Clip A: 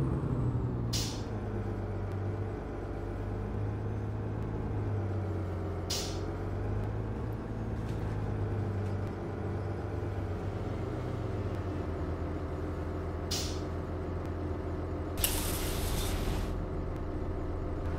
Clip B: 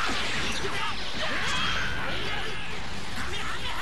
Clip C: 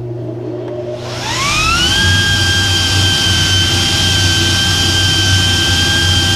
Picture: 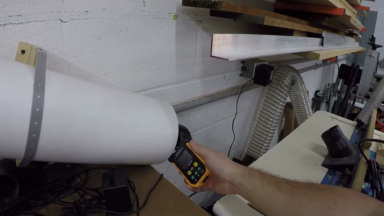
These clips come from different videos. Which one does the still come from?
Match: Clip C